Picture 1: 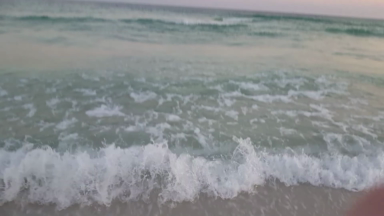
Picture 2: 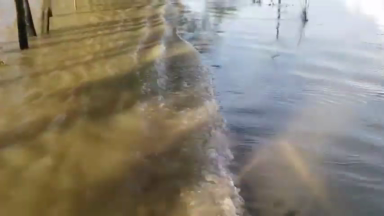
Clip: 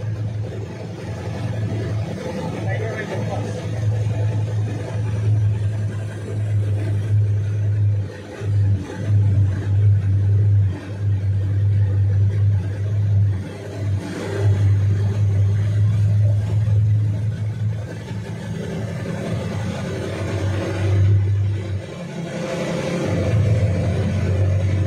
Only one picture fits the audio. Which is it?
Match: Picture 2